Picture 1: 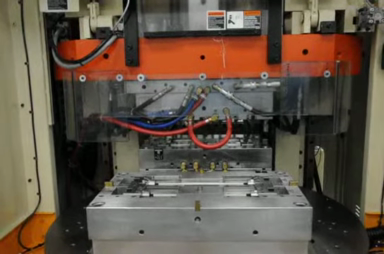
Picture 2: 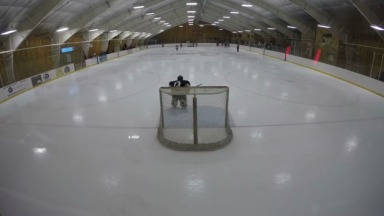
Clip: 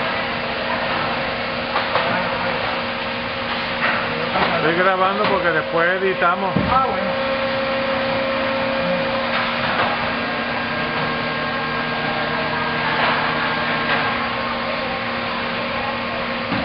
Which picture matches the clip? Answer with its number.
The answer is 1